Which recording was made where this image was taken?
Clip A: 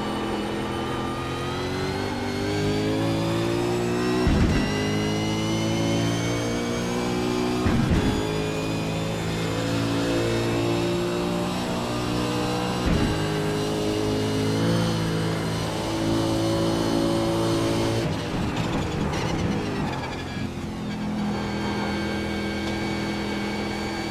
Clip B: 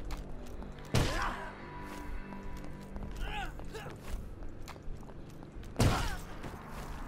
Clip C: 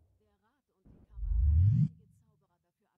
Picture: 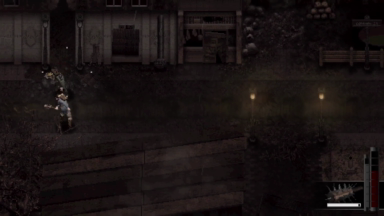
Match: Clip B